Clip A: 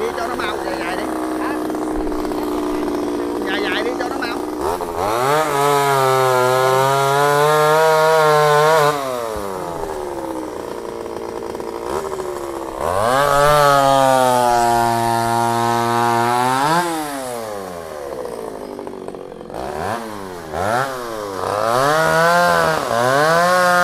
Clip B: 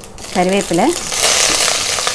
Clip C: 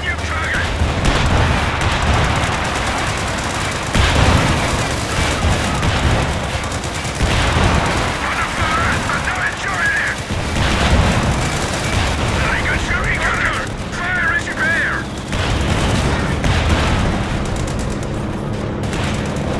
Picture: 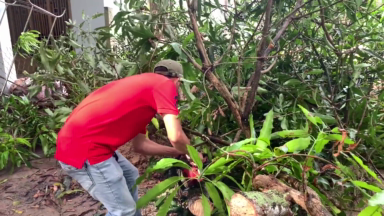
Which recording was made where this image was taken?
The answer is A